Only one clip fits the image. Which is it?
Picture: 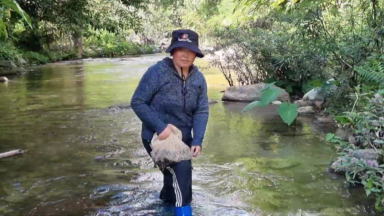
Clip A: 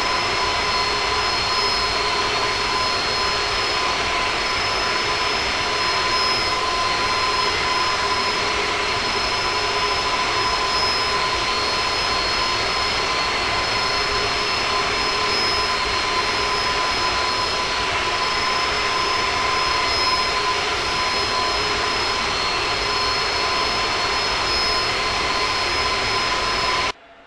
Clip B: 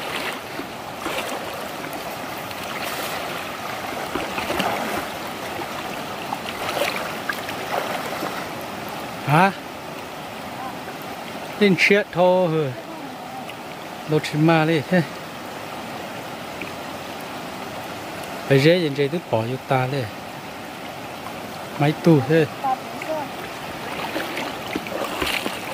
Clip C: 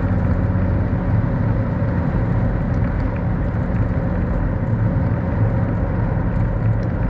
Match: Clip B